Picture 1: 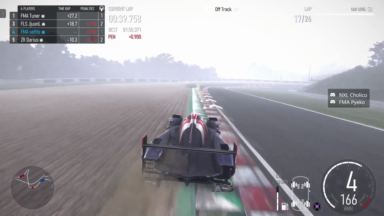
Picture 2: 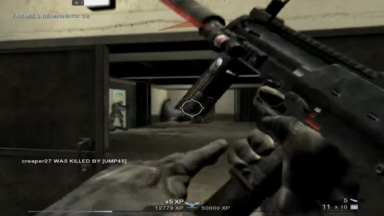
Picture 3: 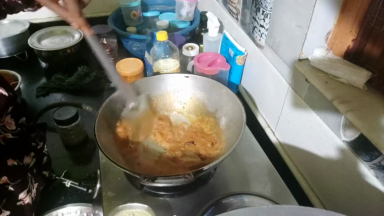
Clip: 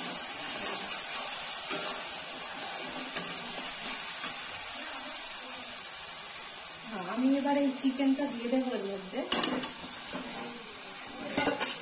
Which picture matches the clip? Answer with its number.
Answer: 3